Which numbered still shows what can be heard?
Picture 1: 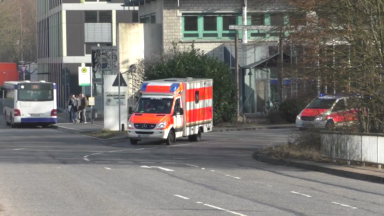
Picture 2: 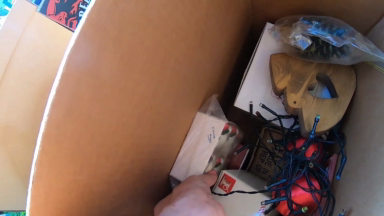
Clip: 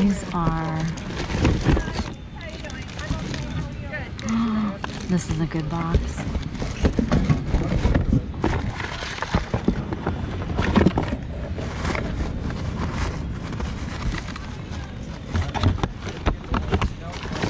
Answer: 2